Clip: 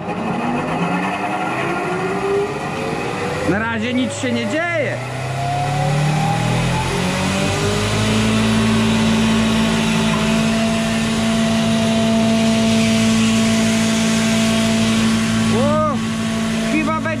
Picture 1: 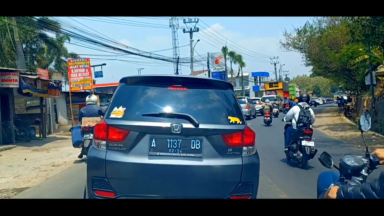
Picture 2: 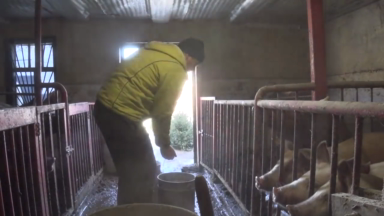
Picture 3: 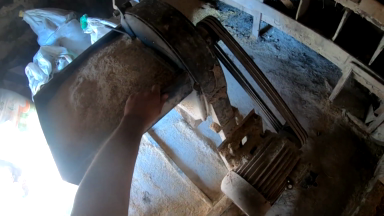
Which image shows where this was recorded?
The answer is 3